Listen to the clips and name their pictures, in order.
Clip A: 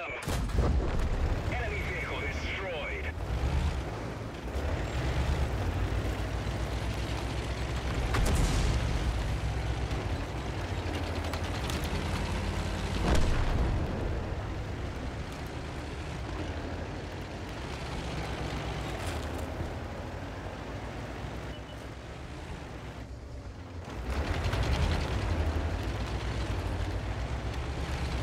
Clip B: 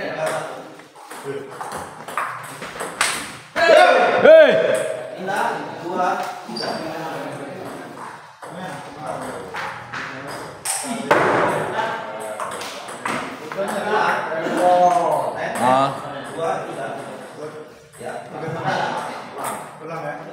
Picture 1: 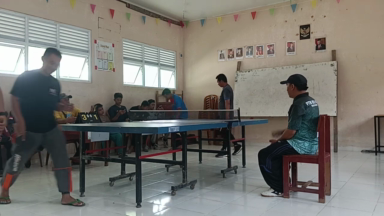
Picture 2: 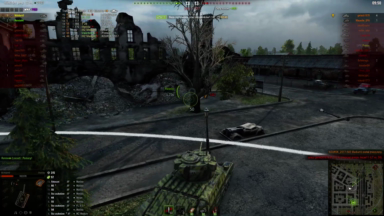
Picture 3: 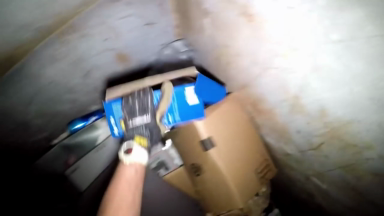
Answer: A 2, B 1